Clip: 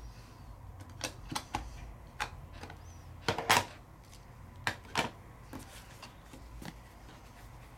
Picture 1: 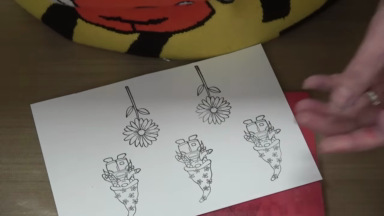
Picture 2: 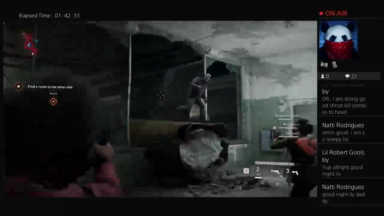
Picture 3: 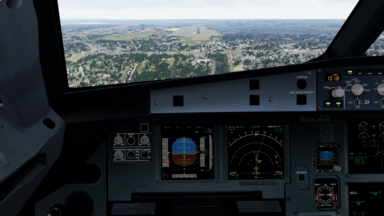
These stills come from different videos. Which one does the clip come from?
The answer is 1